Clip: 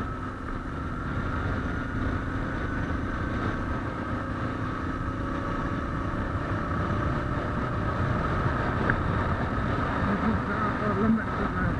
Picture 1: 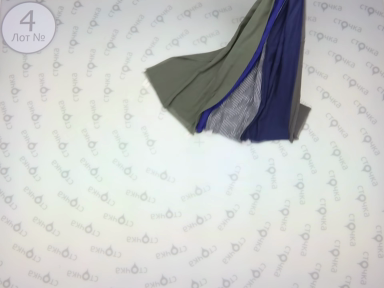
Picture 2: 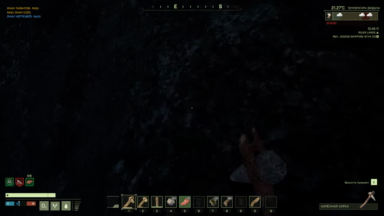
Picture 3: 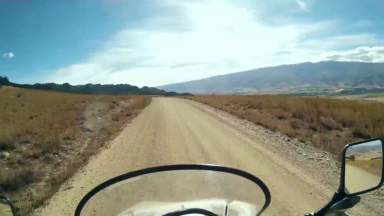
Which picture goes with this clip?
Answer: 3